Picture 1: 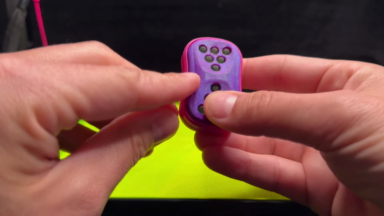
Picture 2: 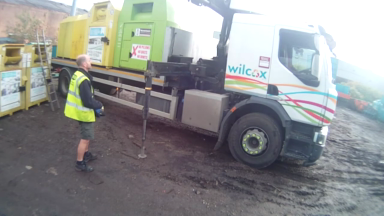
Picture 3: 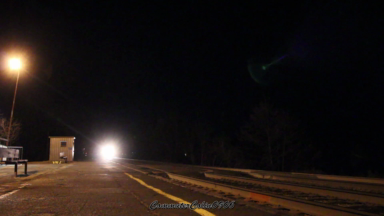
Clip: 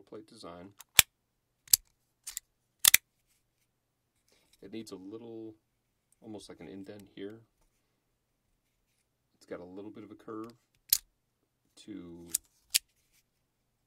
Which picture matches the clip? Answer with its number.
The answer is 1